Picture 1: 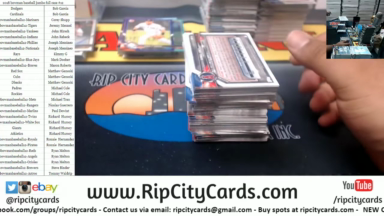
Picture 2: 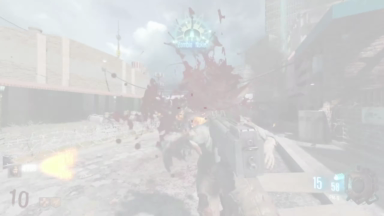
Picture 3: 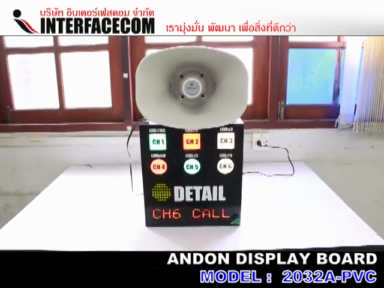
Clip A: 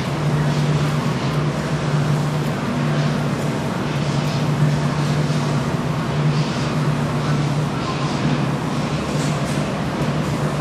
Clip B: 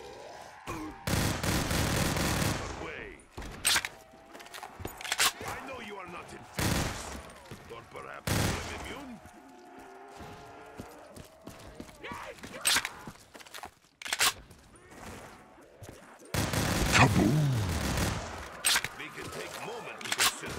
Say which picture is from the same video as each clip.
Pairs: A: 3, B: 2